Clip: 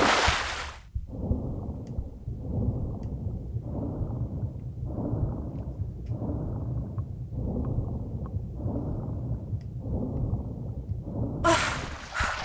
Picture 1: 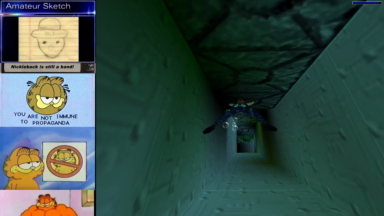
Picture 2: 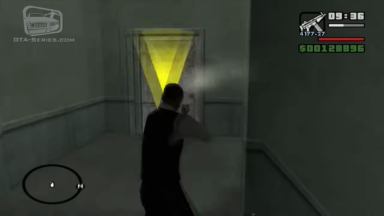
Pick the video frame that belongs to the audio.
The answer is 1